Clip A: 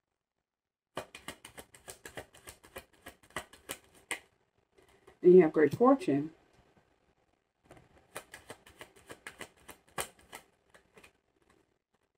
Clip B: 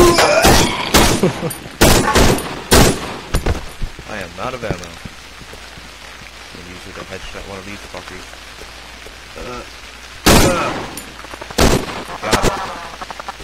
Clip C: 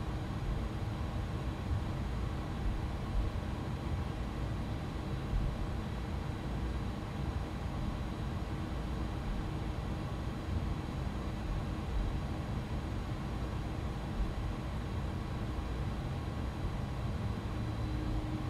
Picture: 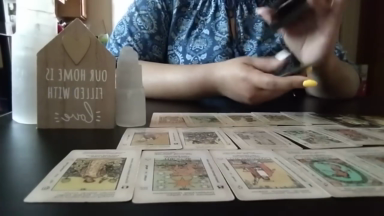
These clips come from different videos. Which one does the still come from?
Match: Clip A